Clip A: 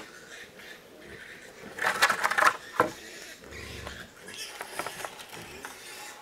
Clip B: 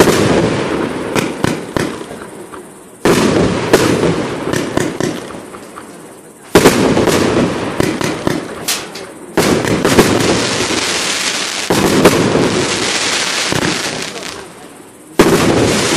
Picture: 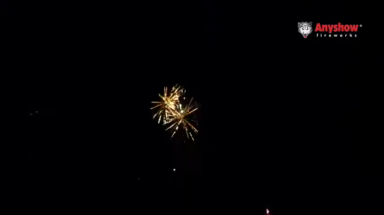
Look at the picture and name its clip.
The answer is B